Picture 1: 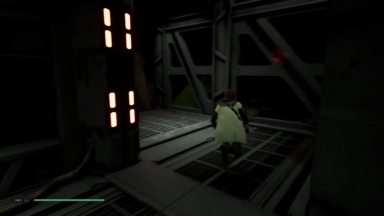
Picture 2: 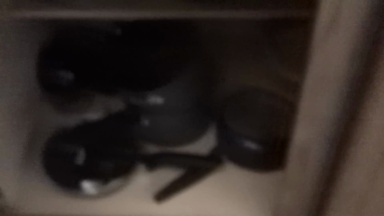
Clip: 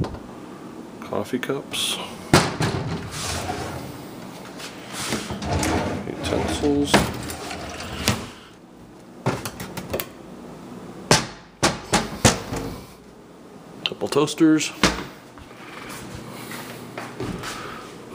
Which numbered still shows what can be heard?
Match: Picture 2